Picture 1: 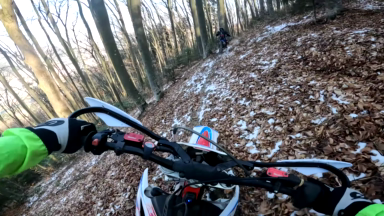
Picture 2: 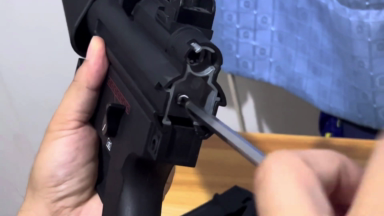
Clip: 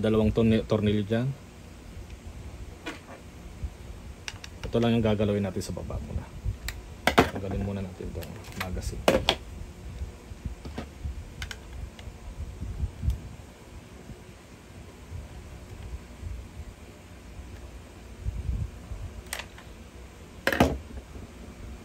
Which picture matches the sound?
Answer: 2